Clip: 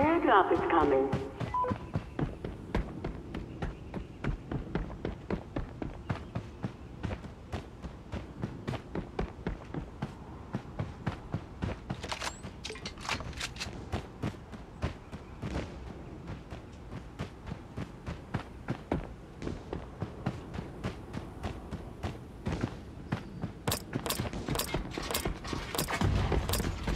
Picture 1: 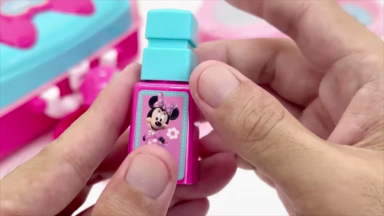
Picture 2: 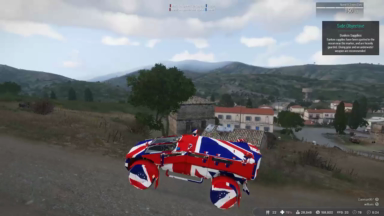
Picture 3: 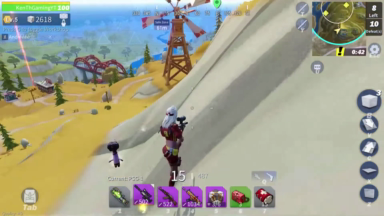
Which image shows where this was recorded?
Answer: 3